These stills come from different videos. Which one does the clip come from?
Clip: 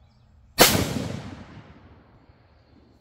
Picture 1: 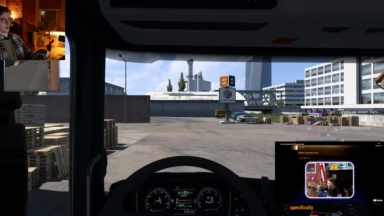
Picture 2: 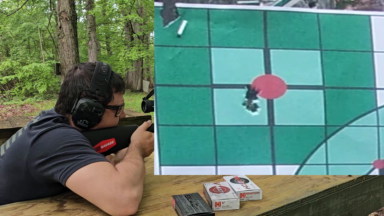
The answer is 2